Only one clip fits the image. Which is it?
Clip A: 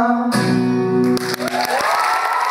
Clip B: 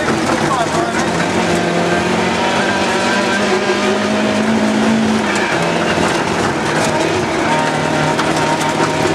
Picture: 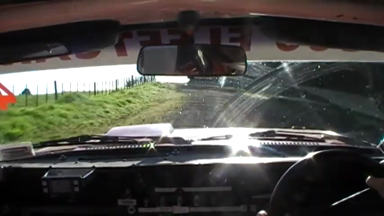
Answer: B